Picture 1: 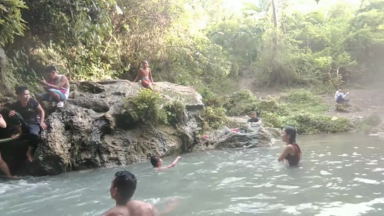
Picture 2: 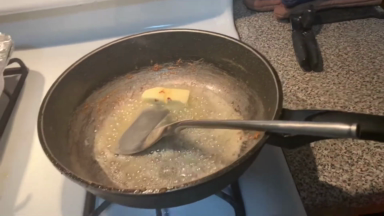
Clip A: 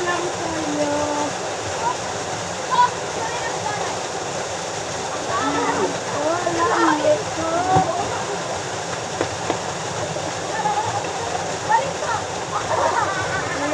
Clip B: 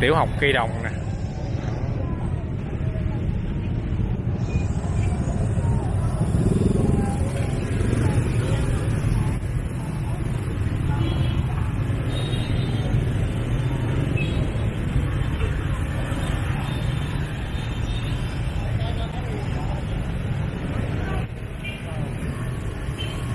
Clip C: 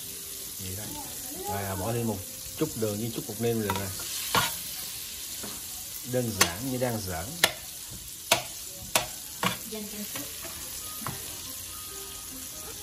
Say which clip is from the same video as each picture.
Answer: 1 A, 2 C